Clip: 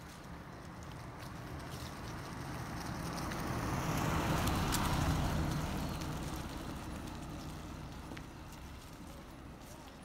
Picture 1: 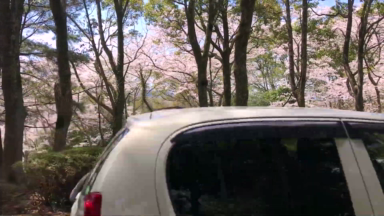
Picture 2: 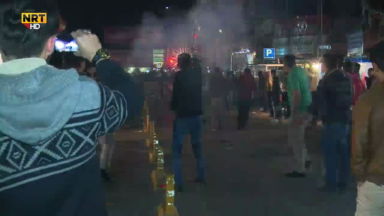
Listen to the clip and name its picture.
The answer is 1